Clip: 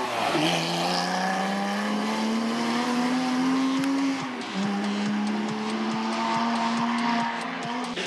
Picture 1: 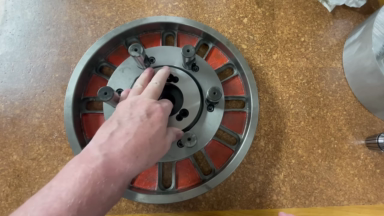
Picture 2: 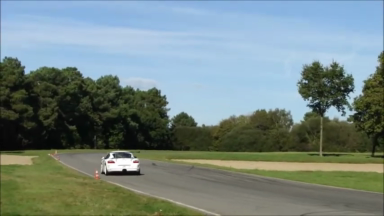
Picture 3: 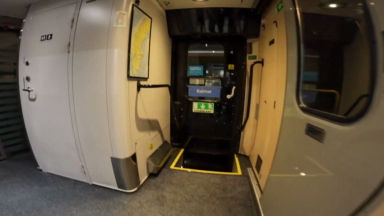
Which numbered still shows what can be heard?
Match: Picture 2